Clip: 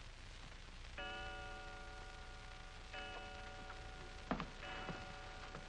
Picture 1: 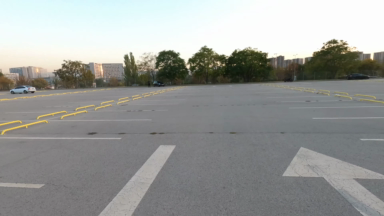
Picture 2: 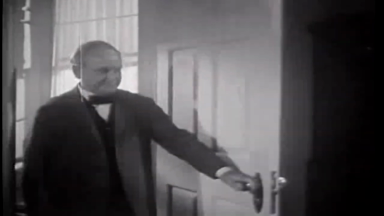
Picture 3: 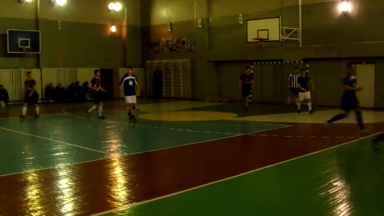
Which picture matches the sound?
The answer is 2